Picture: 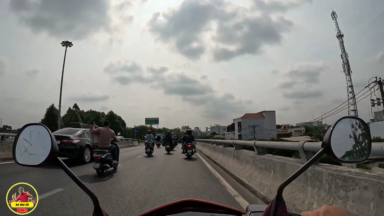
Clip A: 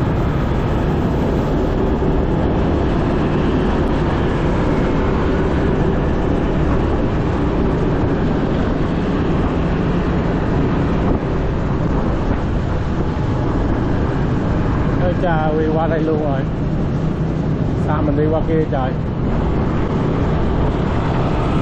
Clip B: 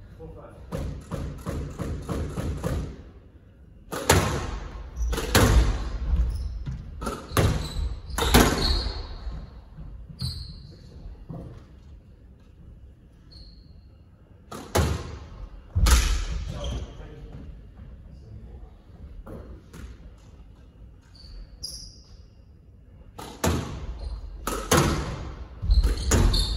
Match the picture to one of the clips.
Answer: A